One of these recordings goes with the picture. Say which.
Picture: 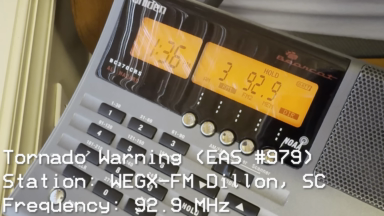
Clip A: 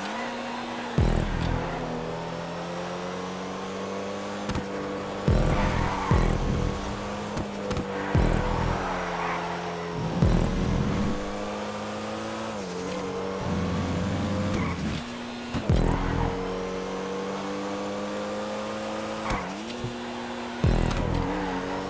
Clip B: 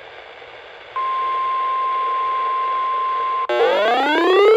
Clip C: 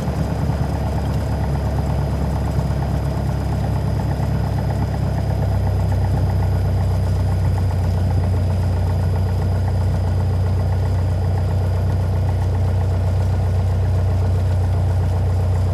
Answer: B